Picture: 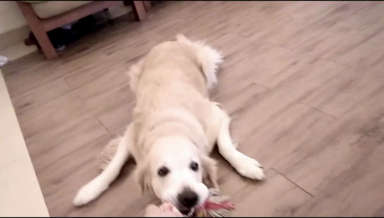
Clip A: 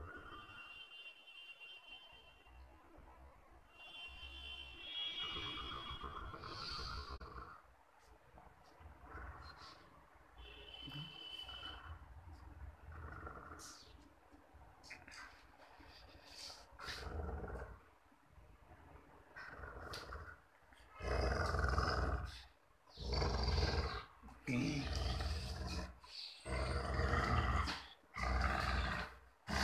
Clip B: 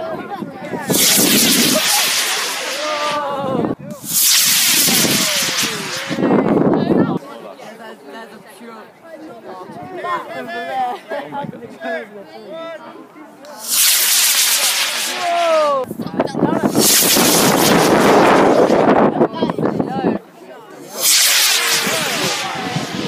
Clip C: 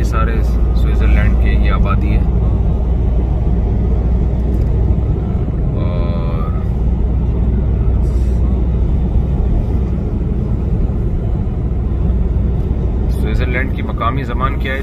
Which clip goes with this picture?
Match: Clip A